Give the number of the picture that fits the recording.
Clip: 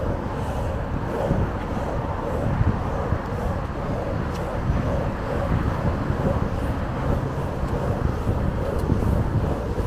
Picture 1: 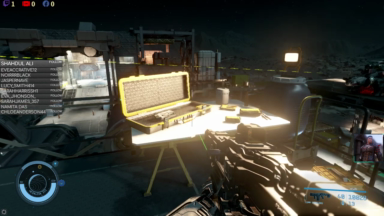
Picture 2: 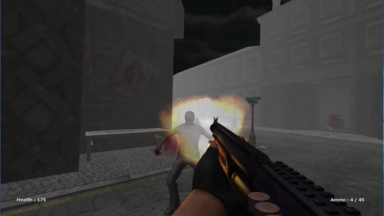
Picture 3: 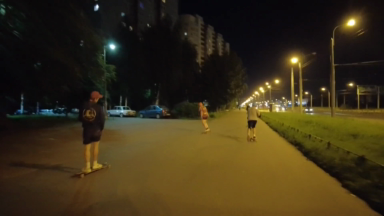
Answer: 3